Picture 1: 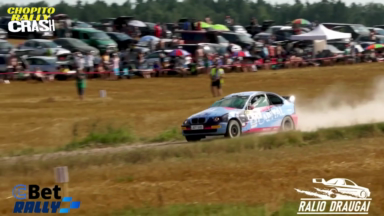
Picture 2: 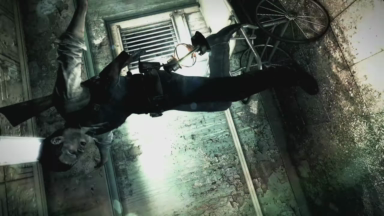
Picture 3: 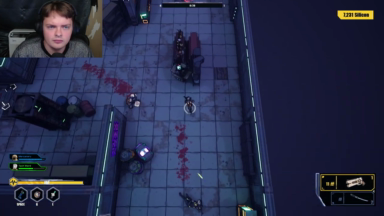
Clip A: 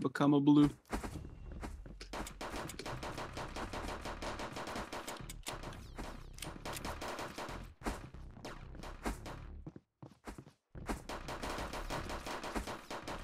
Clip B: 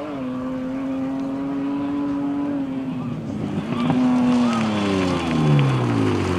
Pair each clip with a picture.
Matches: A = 3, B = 1